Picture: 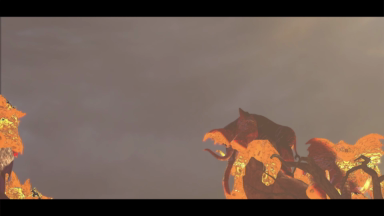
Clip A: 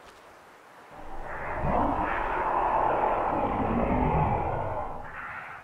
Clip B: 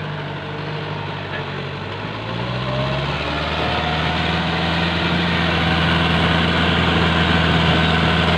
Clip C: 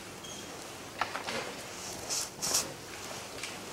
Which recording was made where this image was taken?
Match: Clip A